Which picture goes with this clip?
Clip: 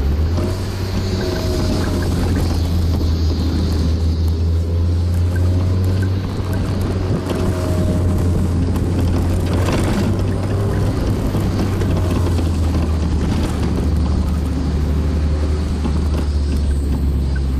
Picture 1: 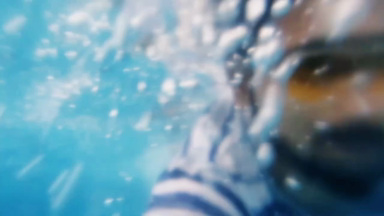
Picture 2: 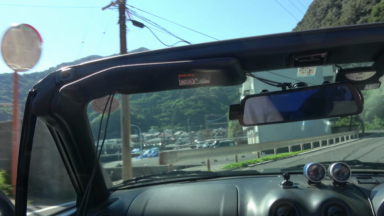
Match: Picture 2